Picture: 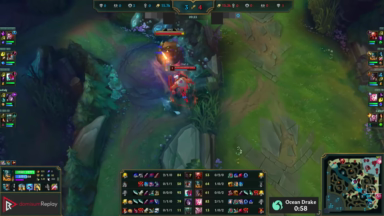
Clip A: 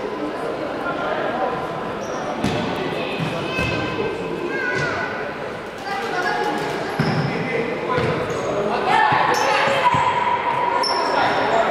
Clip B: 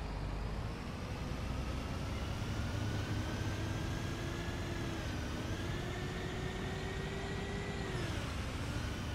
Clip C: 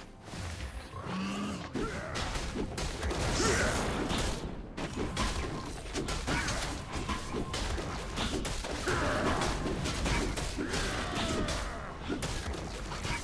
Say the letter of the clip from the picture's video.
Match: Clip C